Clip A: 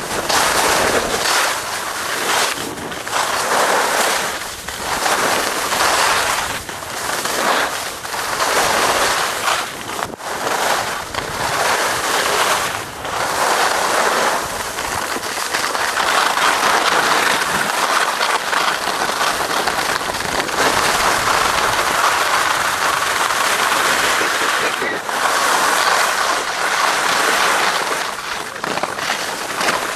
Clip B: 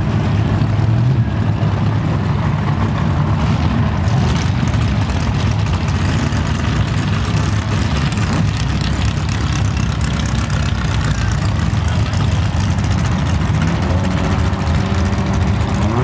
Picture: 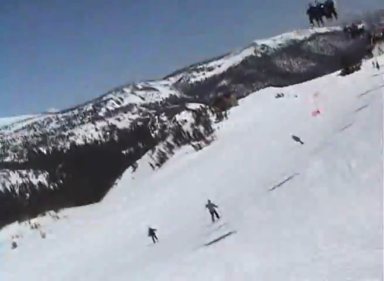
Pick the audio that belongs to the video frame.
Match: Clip A